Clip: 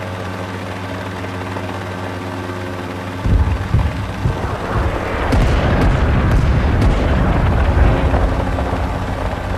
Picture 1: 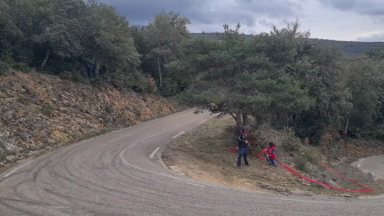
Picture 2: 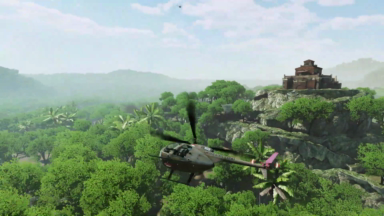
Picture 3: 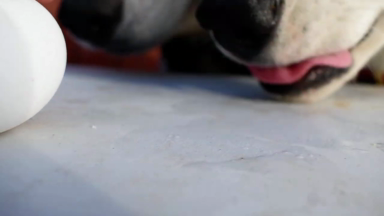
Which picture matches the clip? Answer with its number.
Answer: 2